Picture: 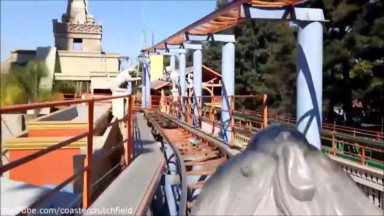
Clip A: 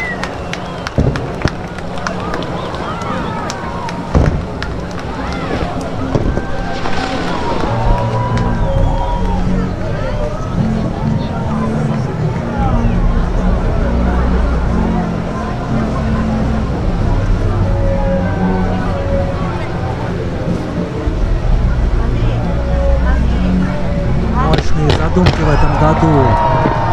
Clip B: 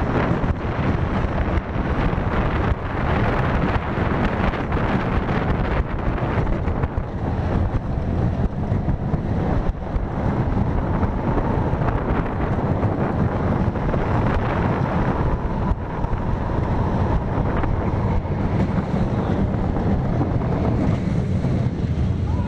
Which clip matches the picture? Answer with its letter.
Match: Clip B